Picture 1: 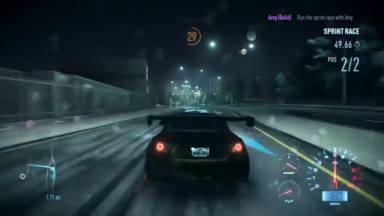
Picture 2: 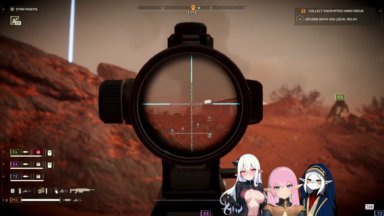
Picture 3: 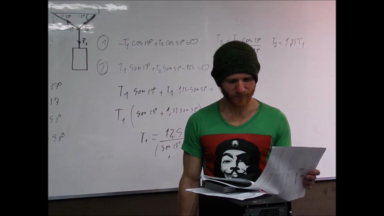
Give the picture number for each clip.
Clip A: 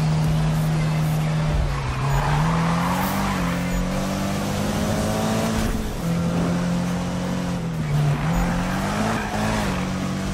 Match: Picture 1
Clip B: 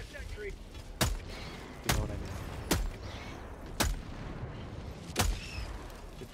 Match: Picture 2